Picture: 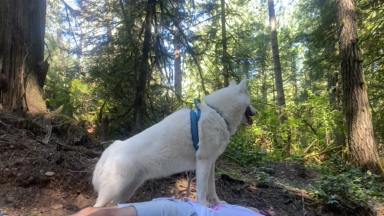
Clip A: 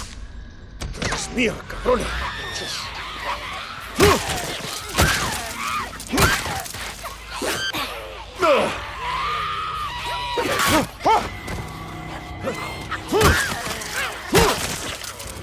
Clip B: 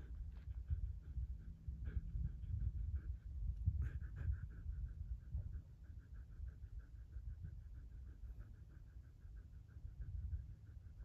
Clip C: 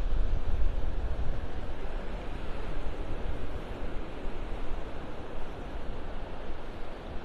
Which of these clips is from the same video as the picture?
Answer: B